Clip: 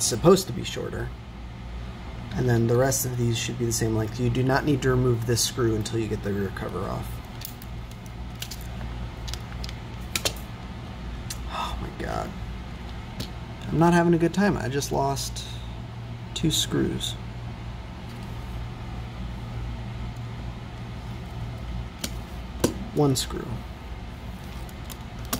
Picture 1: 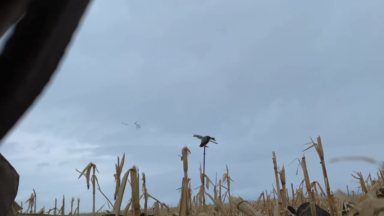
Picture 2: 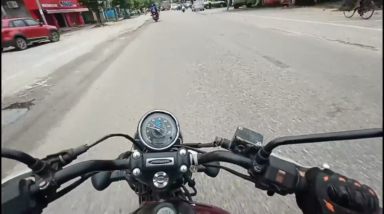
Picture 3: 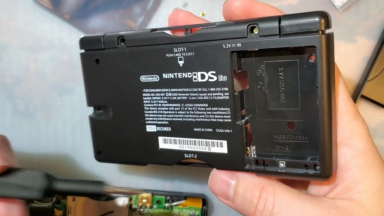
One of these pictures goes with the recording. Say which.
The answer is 3